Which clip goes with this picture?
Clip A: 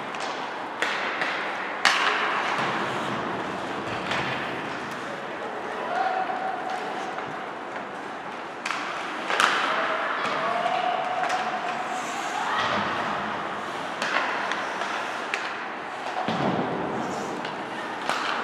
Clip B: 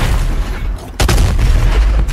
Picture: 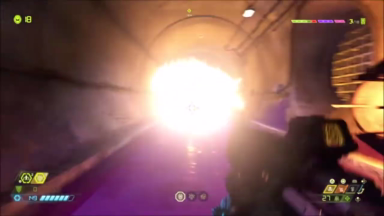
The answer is B